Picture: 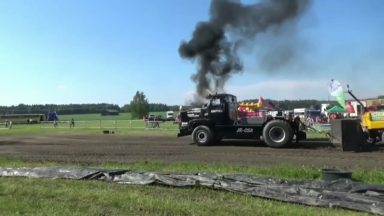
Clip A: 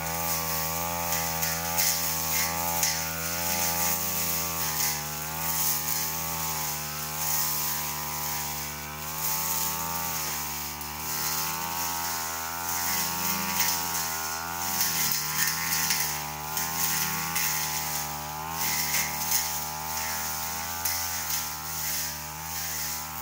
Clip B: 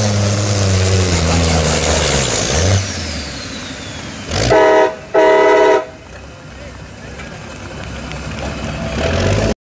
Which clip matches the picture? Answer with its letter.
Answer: B